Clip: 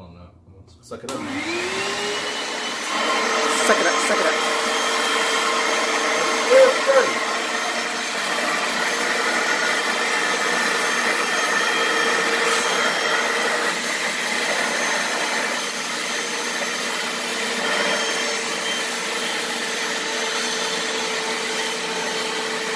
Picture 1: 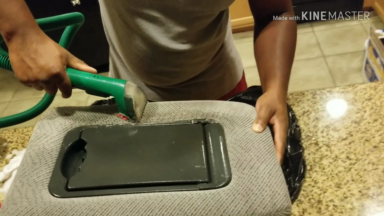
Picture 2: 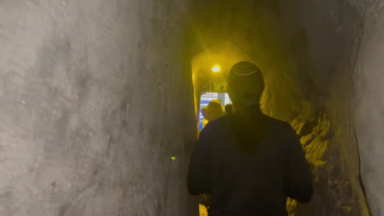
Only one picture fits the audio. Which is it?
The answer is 1